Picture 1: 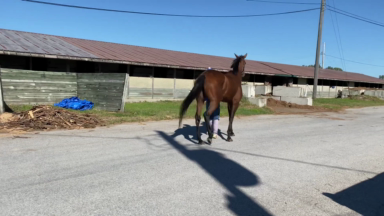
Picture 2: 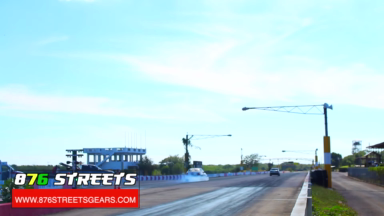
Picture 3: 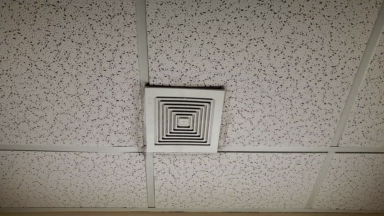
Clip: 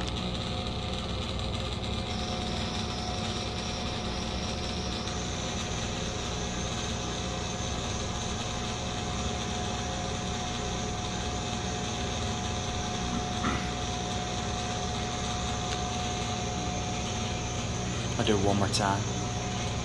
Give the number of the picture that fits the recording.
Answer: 3